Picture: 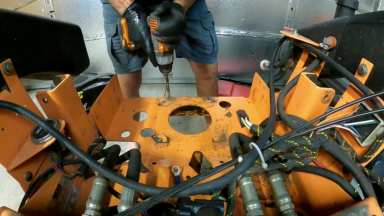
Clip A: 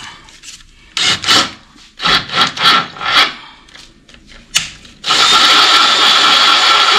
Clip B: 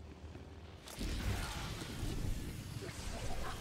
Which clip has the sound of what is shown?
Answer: A